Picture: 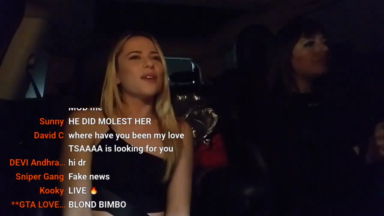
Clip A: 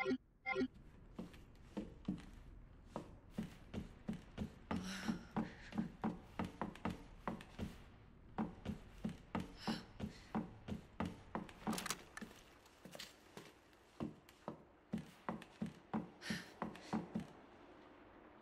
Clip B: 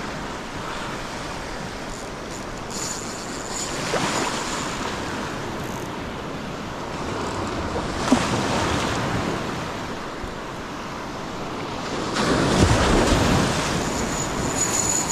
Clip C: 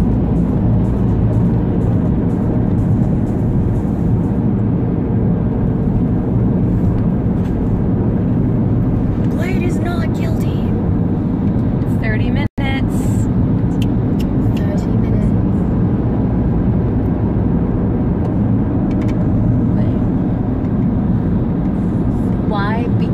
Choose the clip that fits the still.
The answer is C